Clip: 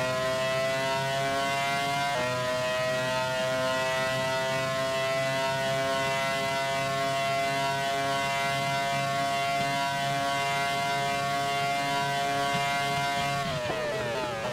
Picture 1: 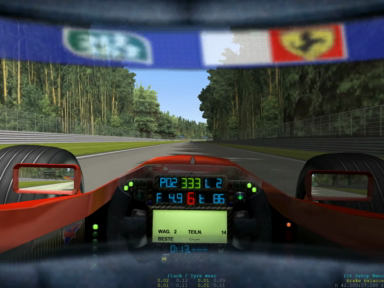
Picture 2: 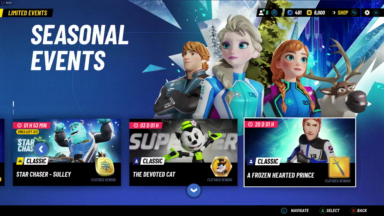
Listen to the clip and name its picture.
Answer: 1